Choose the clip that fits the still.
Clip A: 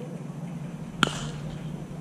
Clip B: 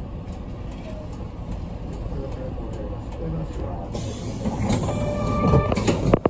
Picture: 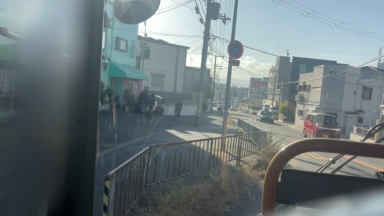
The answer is B